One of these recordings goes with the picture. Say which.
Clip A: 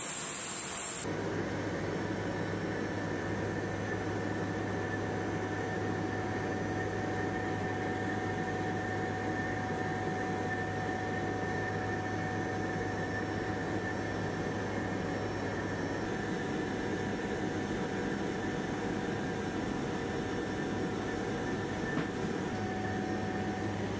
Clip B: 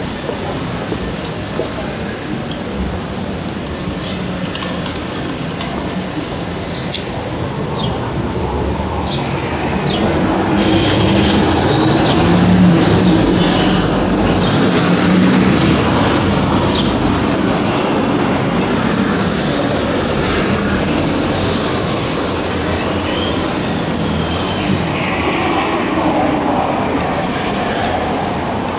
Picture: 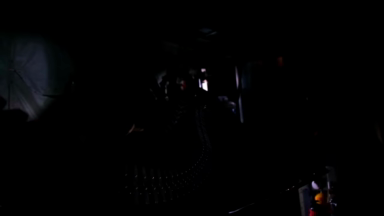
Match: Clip A